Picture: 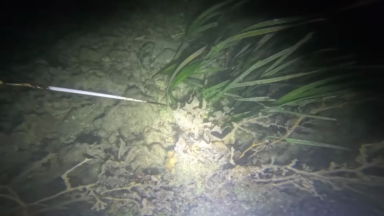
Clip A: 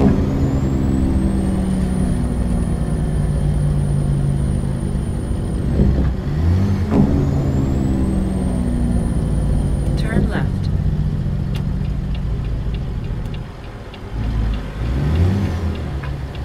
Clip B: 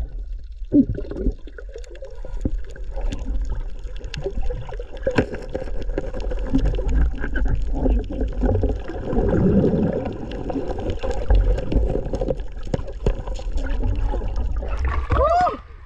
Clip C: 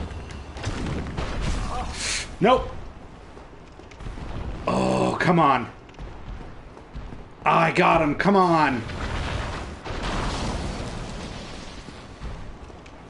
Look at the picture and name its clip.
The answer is B